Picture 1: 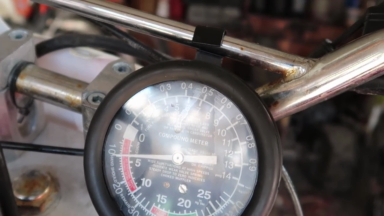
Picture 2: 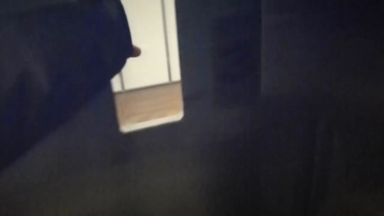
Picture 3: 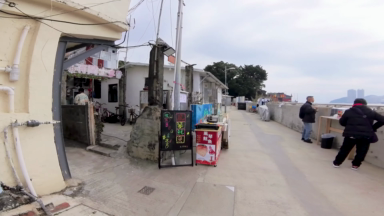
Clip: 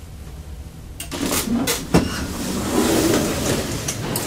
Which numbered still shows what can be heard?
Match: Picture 2